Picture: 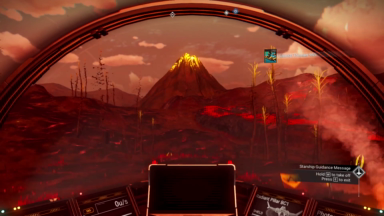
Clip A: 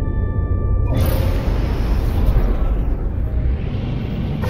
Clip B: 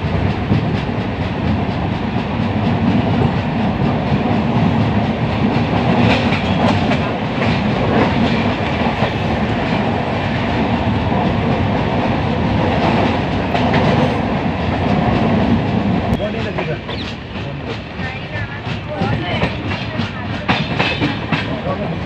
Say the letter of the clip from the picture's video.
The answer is A